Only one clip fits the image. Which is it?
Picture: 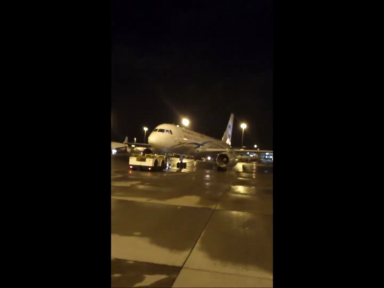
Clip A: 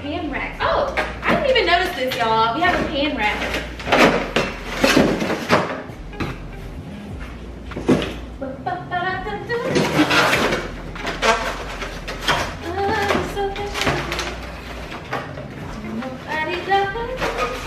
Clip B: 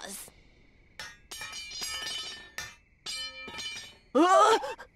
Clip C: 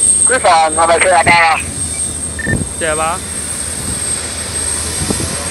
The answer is C